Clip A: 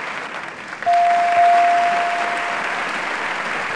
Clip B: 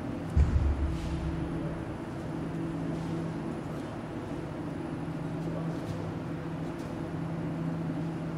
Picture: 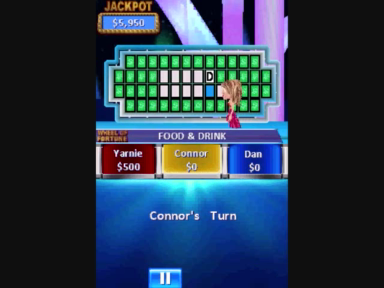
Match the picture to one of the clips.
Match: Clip A